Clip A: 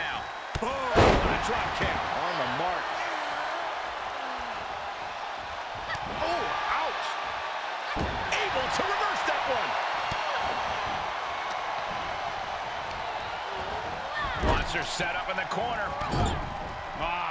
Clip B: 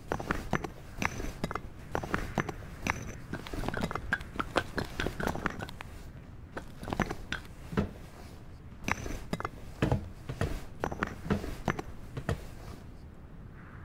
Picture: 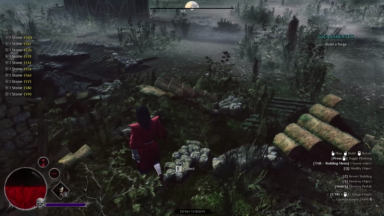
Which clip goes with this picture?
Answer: B